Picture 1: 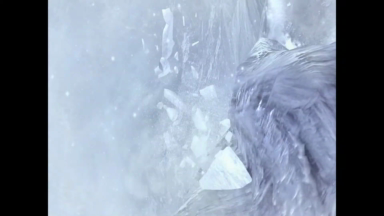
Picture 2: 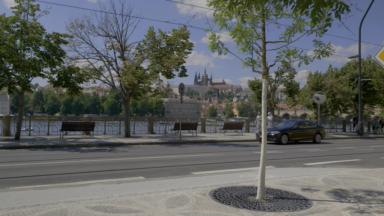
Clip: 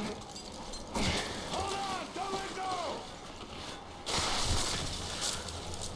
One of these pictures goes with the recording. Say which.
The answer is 1